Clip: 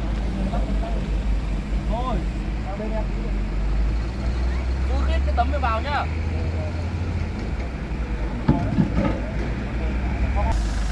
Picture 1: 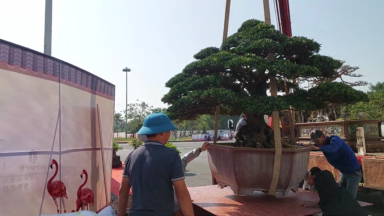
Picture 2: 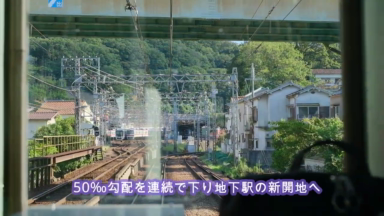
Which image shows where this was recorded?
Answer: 1